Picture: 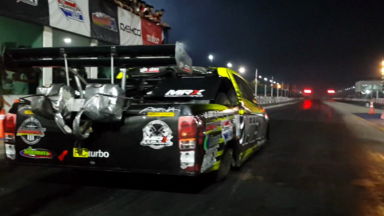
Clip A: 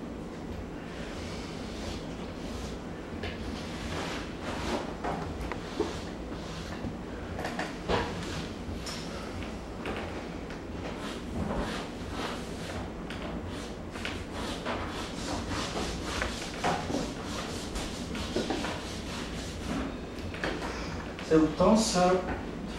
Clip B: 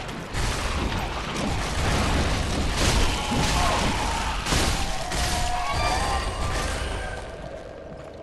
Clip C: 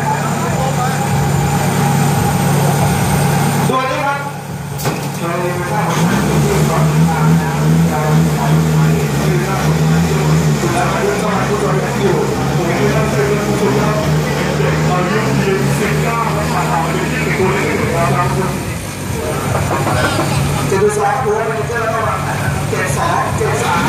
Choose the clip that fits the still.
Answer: C